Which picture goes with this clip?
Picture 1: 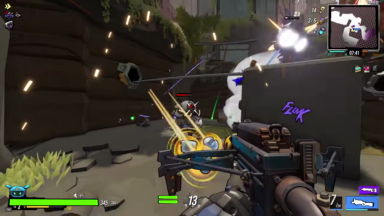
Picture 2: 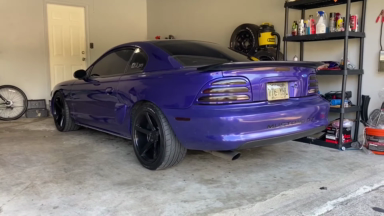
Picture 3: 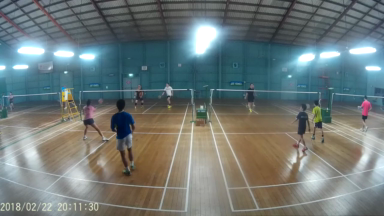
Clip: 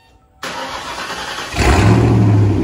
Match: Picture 2